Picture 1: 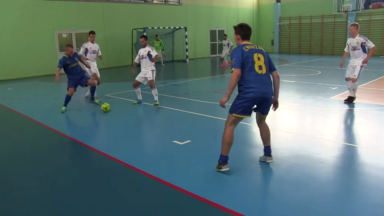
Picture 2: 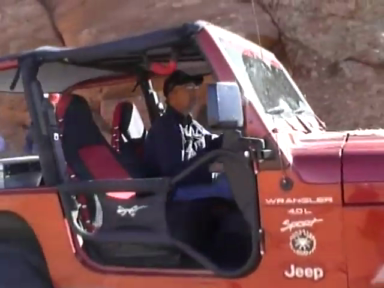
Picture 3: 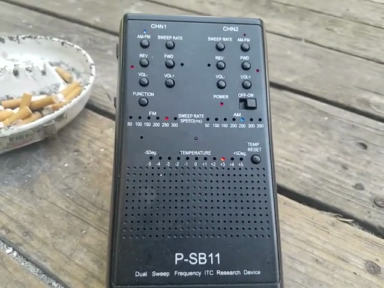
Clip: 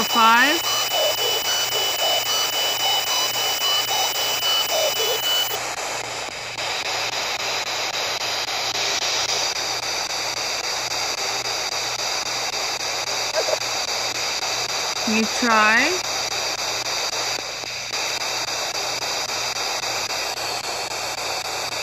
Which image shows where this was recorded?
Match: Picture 3